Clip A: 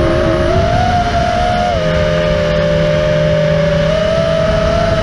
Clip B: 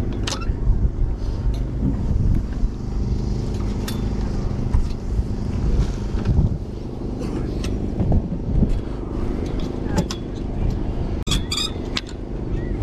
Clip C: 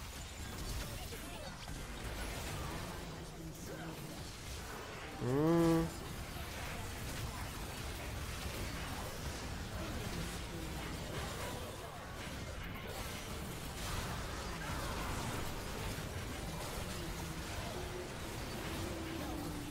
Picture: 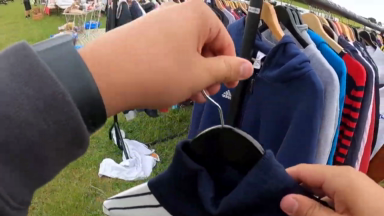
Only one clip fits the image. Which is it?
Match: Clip B